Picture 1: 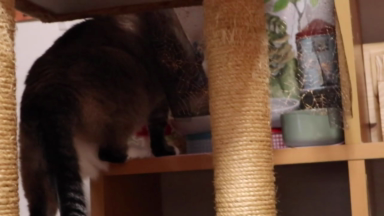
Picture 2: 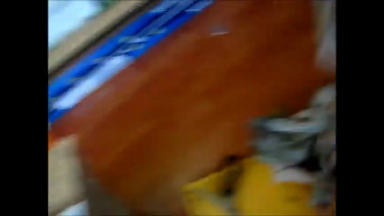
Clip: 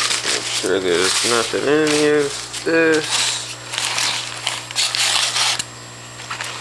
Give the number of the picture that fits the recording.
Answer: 2